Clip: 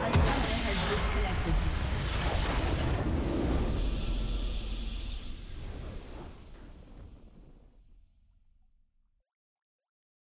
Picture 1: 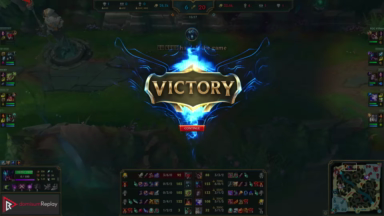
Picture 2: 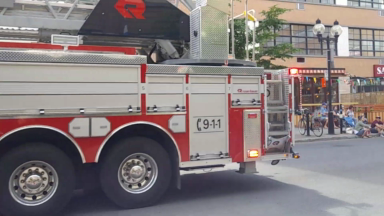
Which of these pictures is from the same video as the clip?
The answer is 1